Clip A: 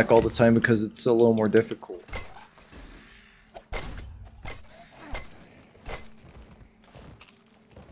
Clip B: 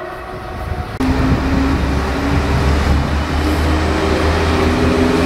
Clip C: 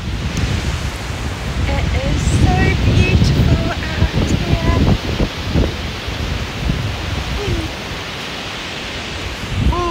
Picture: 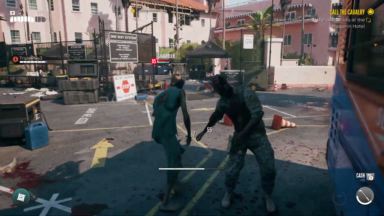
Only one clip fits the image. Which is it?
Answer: A